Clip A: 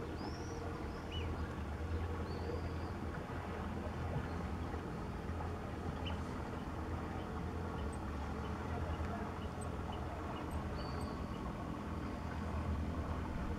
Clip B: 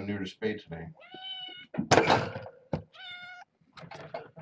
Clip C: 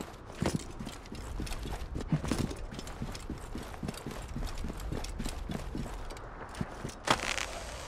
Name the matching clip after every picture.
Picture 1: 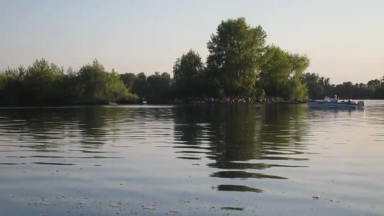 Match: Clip A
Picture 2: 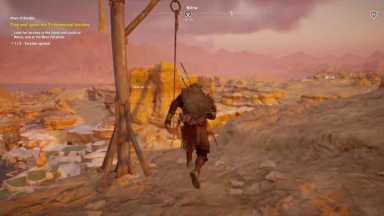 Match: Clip C